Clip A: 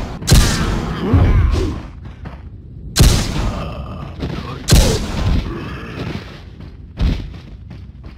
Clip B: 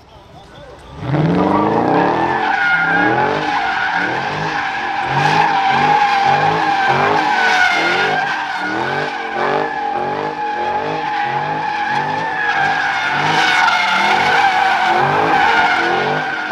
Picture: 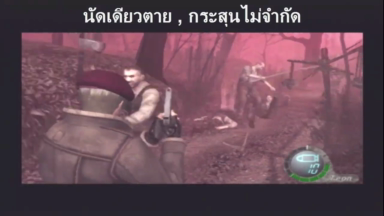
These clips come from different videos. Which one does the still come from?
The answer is A